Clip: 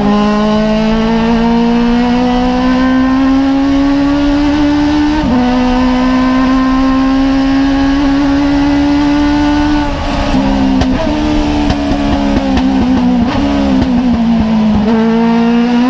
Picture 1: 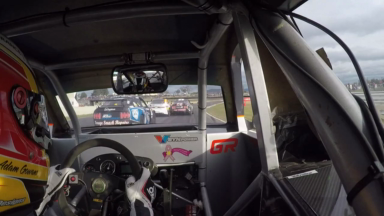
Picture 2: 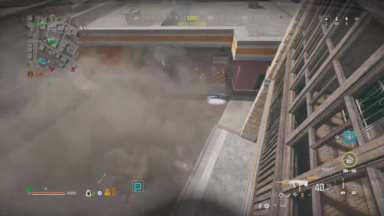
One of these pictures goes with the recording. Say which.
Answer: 1